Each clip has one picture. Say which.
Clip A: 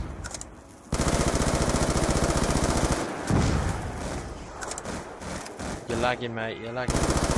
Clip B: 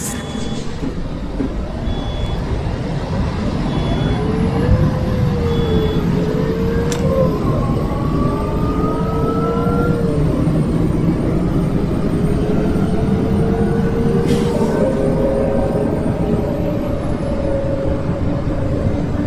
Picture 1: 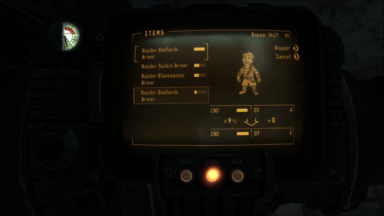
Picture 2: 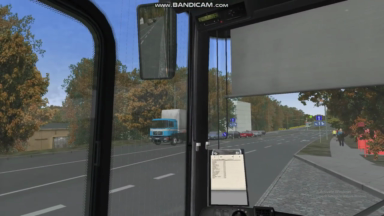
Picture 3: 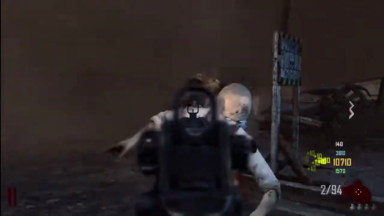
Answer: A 3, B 2